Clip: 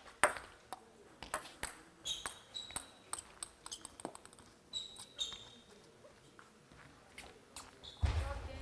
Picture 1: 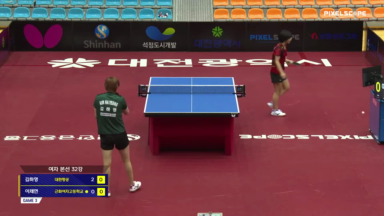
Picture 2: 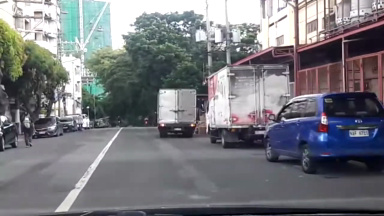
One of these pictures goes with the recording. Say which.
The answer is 1